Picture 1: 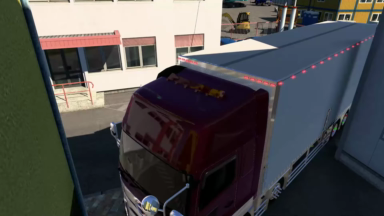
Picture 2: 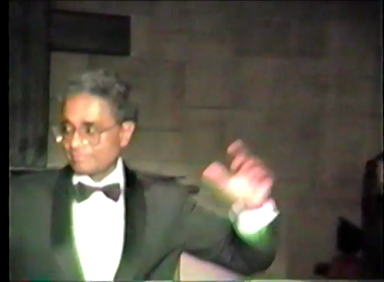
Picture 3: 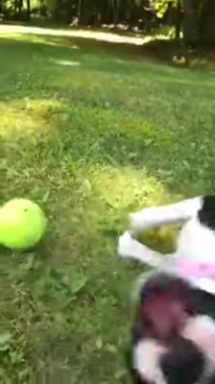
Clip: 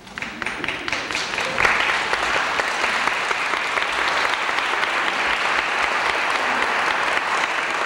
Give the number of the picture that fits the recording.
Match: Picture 2